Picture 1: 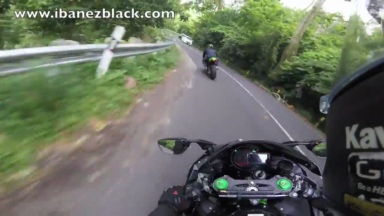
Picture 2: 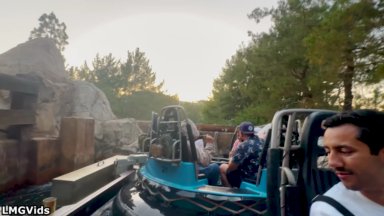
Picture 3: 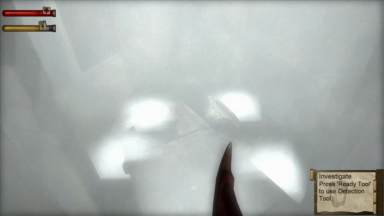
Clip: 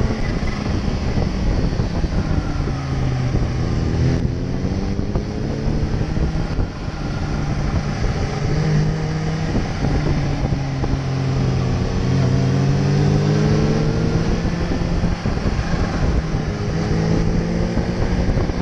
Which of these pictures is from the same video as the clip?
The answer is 1